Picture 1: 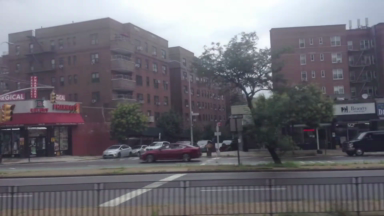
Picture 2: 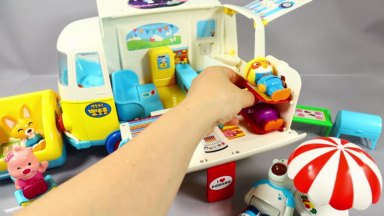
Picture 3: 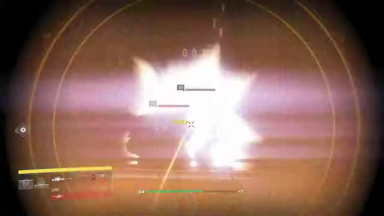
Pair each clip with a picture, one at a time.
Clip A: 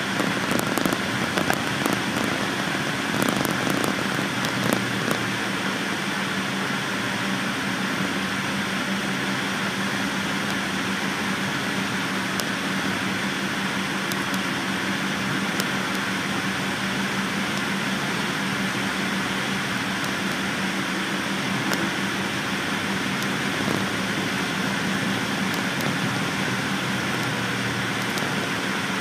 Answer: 1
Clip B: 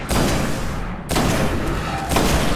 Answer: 3